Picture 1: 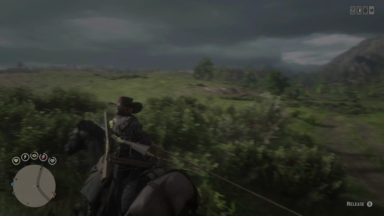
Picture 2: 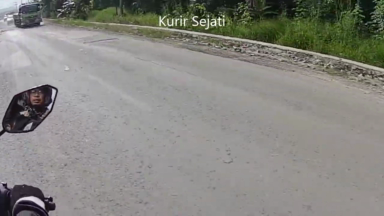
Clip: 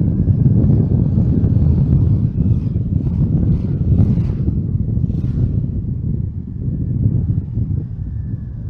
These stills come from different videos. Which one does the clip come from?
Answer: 2